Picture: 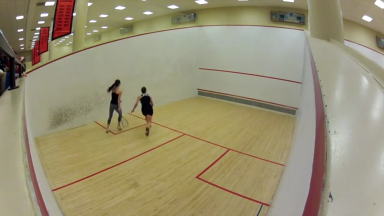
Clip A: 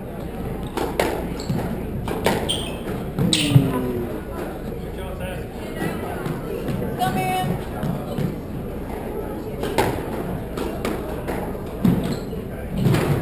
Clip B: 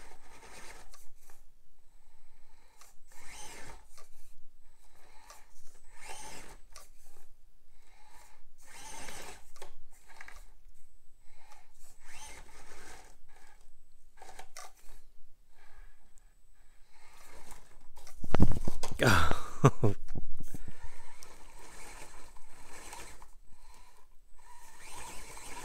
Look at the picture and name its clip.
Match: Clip A